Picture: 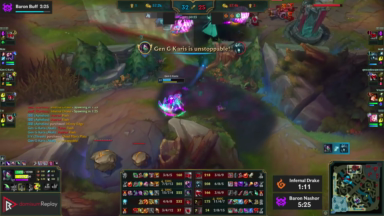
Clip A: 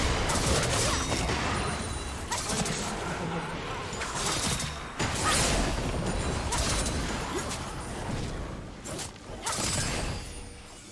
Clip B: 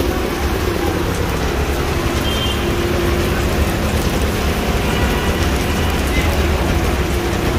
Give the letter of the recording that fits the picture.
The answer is A